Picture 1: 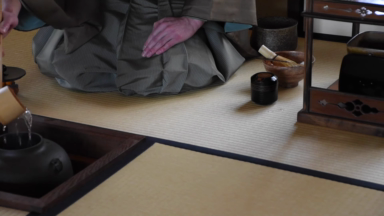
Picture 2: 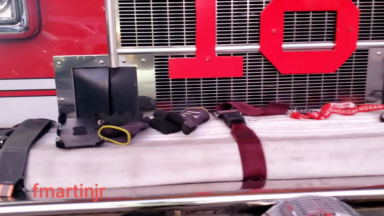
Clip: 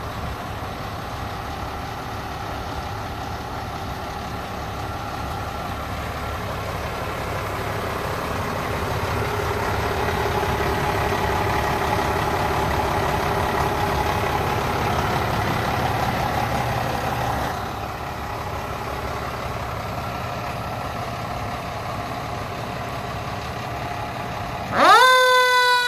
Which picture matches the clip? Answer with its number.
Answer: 2